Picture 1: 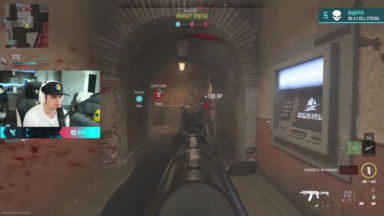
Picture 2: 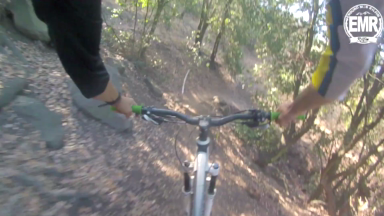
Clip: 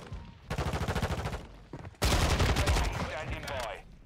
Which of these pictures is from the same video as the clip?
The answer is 1